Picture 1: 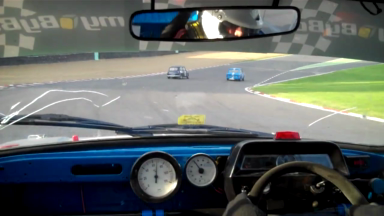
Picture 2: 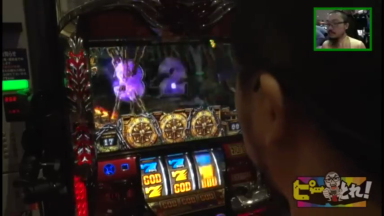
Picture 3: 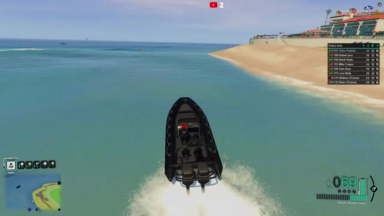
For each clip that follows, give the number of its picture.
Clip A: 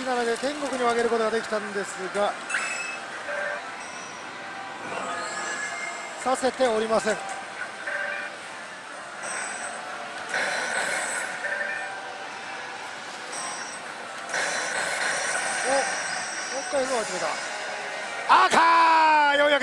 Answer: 2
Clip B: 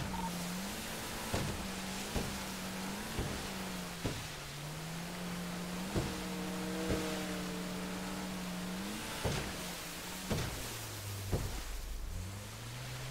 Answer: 3